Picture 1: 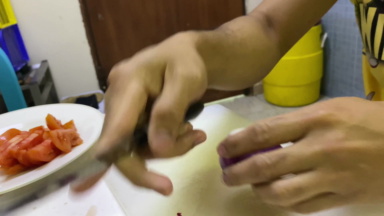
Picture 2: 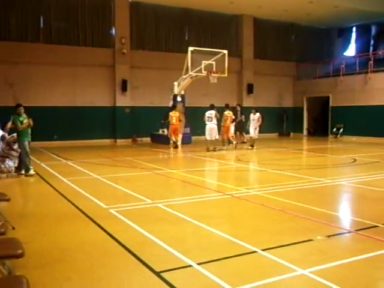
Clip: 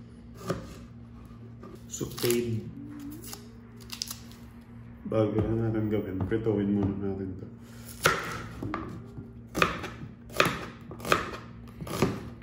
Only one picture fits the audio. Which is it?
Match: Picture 1